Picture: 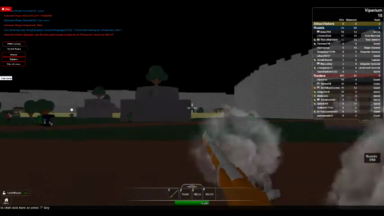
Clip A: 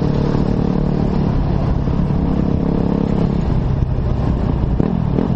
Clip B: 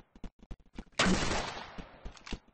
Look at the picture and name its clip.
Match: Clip B